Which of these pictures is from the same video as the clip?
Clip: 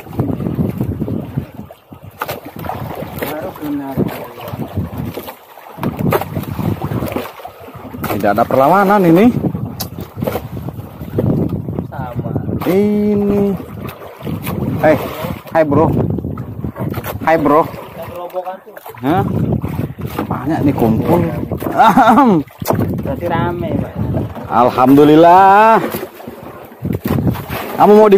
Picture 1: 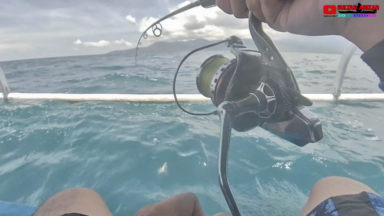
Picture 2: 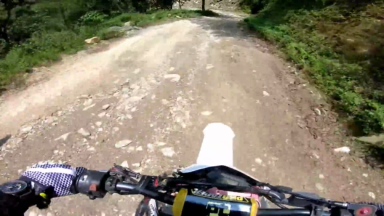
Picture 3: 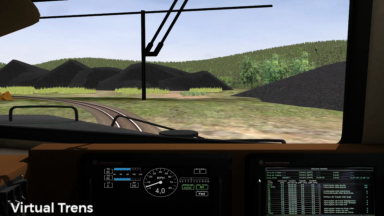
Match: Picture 1